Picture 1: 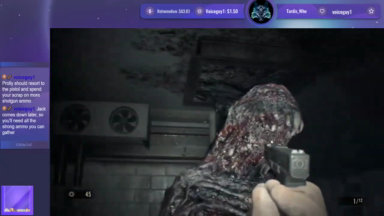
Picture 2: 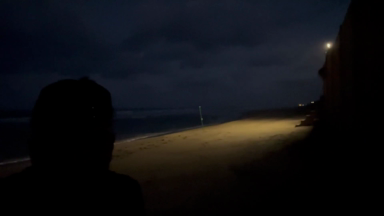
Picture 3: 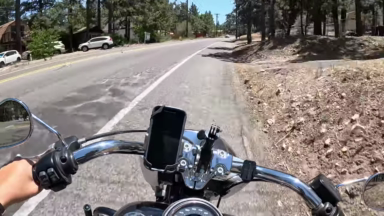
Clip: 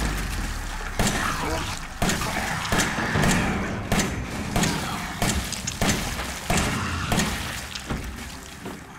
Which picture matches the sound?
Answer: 1